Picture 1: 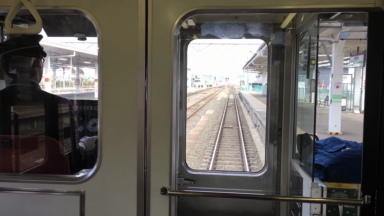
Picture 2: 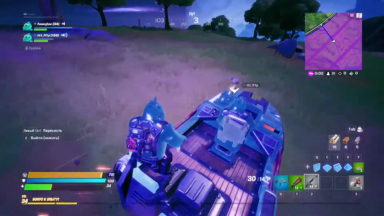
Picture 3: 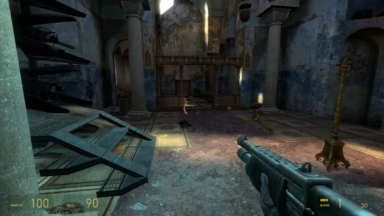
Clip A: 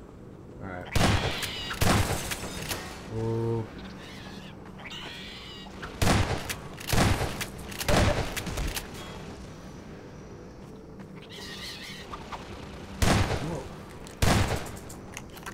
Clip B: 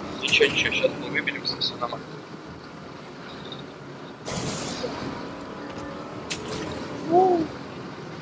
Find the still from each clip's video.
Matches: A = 3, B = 2